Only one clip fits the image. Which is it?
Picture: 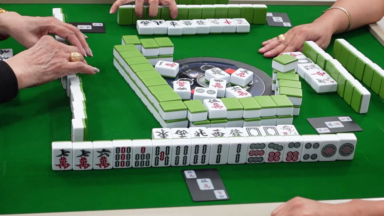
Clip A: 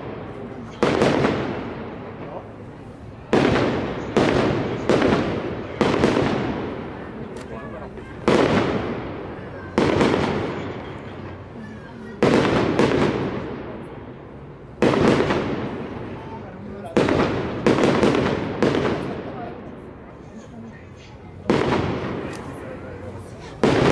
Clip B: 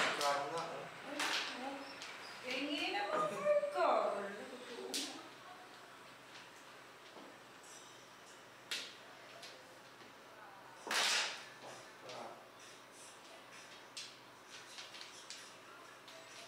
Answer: B